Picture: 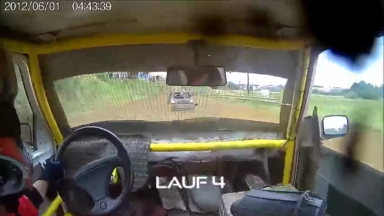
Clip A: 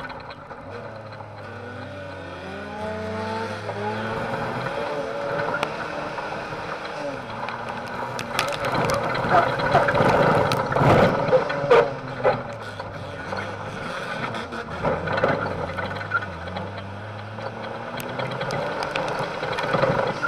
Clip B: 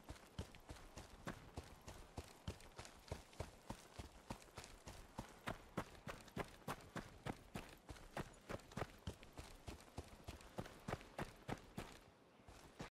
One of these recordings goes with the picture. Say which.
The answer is A